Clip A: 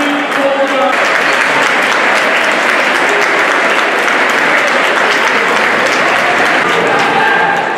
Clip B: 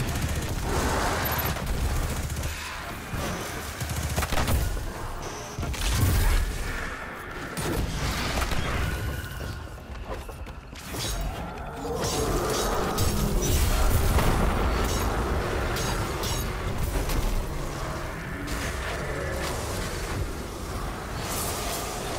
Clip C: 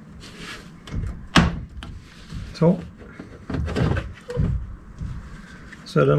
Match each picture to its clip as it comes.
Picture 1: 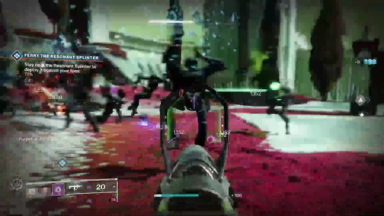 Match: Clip B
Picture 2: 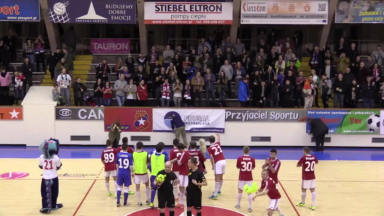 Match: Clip A